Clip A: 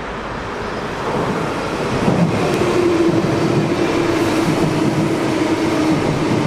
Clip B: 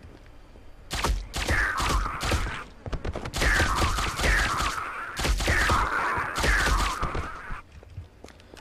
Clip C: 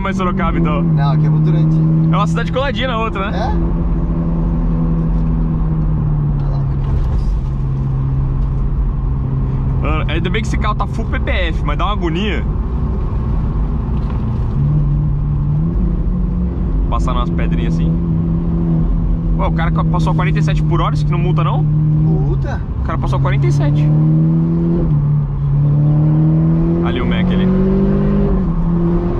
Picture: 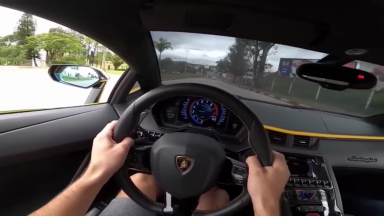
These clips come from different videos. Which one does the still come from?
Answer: C